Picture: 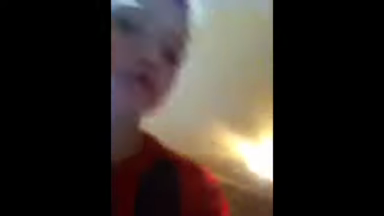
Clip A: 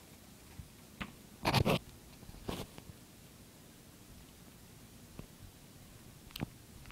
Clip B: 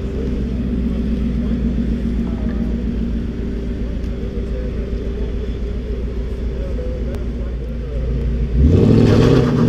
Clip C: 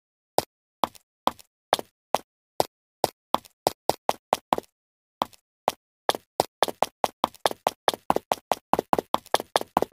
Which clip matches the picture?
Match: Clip A